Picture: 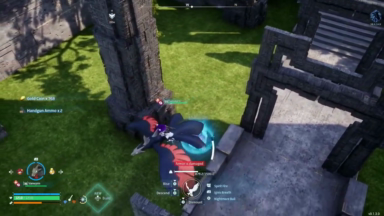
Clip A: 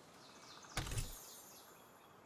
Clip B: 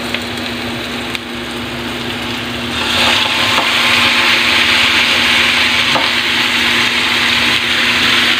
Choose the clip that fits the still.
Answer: A